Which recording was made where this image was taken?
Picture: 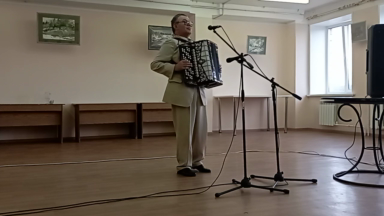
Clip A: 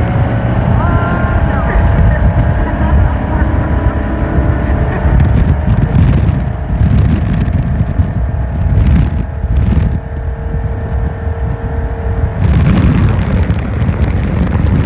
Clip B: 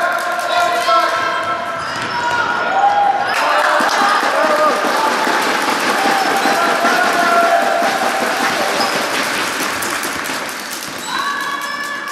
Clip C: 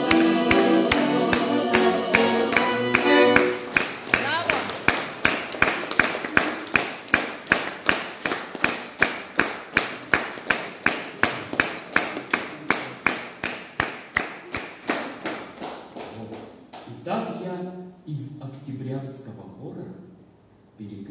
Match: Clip C